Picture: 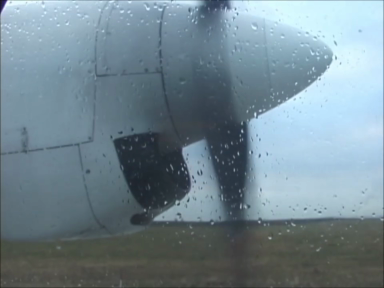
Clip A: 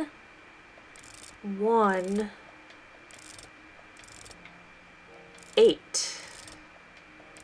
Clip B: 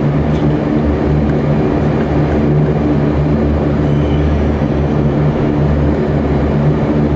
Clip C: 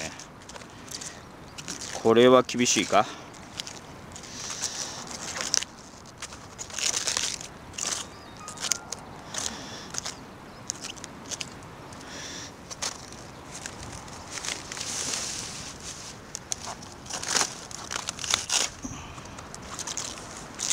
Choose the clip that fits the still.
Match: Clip B